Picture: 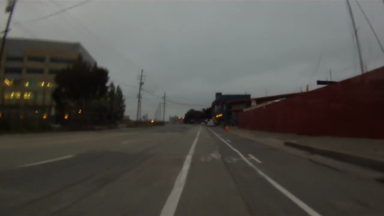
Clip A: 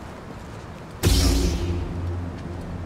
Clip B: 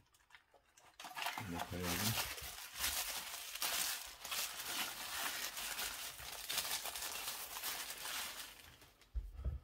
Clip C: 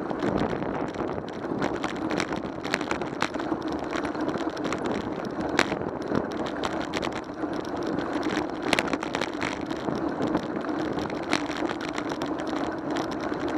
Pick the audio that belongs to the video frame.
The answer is C